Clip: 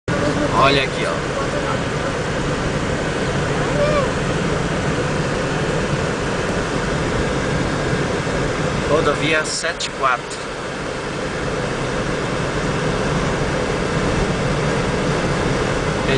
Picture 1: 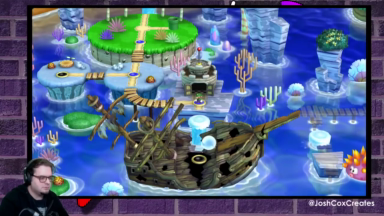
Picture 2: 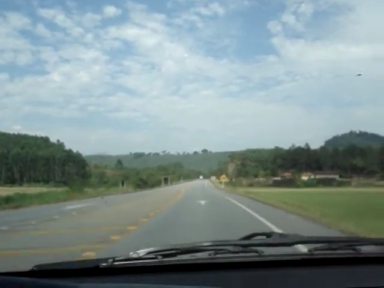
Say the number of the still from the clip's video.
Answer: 2